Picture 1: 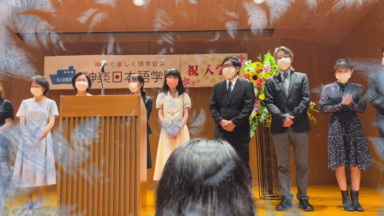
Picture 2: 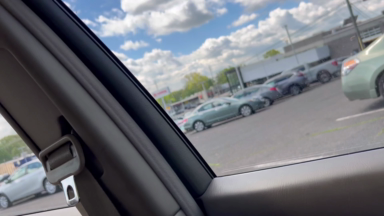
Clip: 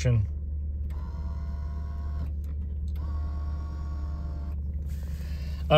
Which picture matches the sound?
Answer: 2